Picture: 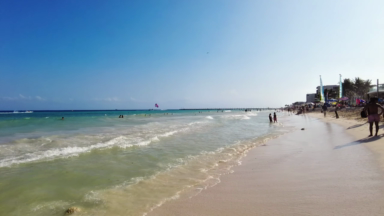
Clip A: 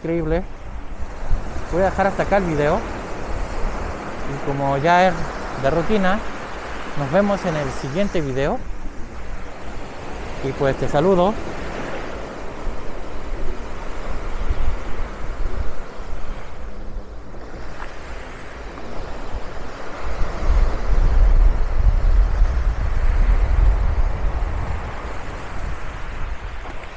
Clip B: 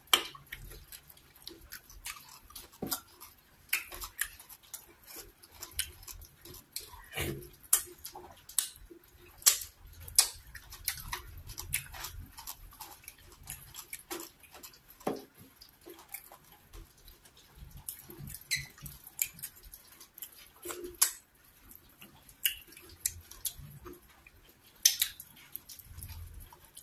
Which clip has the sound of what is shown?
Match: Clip A